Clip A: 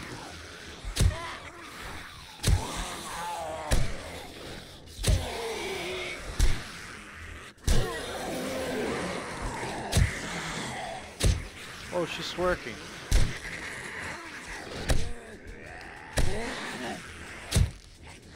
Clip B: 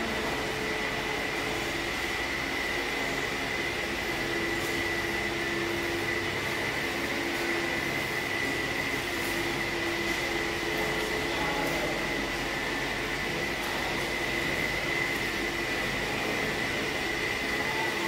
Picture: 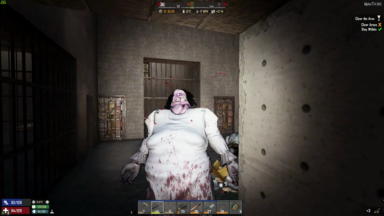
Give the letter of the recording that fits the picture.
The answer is A